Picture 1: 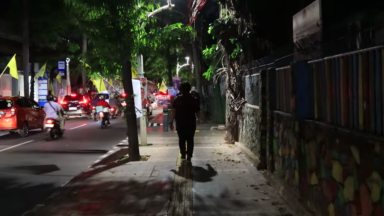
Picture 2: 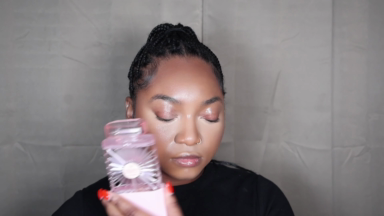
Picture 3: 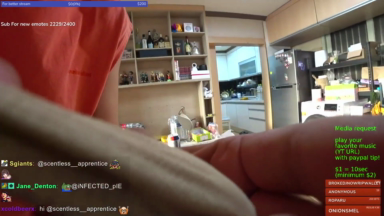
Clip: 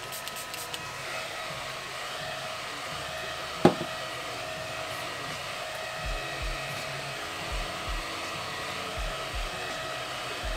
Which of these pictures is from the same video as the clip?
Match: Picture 2